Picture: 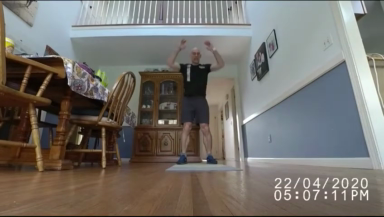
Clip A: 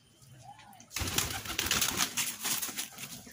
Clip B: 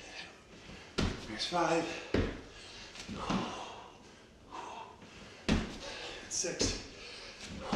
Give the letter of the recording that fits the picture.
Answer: B